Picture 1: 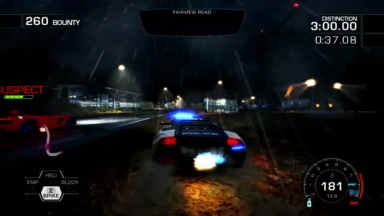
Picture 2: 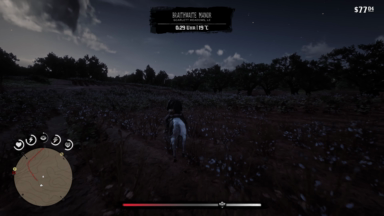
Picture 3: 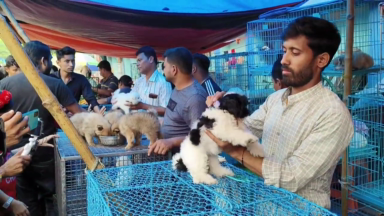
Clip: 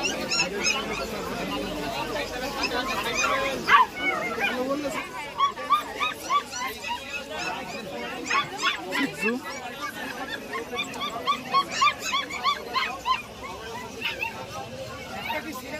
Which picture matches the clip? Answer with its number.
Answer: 3